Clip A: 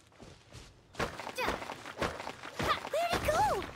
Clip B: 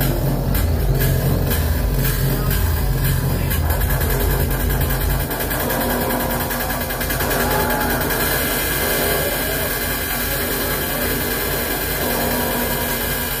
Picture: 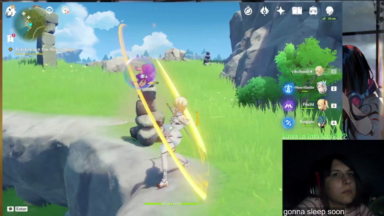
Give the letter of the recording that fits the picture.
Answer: A